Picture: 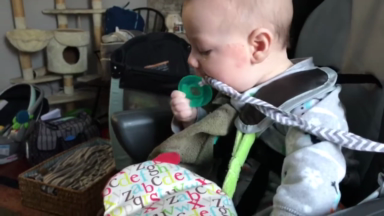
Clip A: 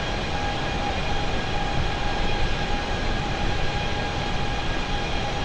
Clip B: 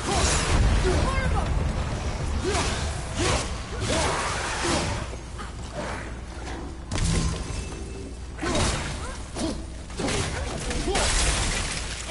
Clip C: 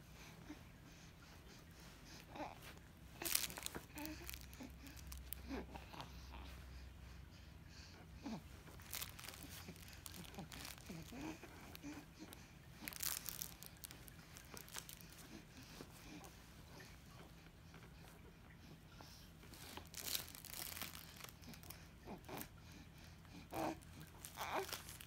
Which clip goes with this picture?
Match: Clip C